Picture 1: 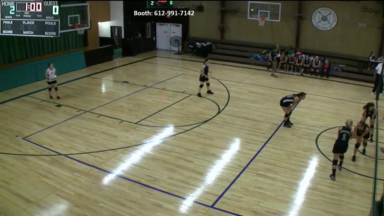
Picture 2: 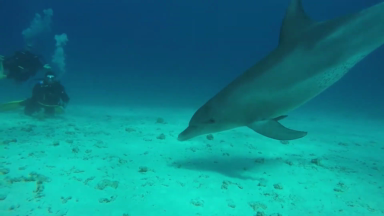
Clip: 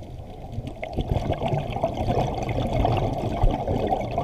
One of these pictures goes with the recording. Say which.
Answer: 2